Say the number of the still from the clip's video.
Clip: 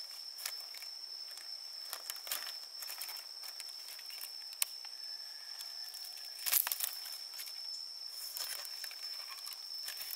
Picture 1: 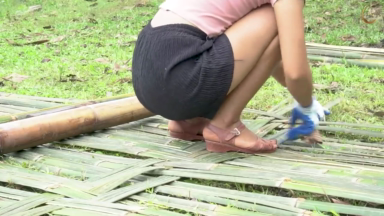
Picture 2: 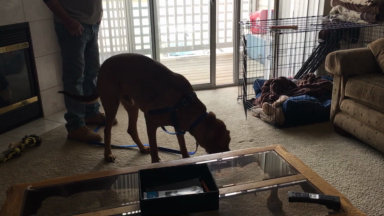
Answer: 1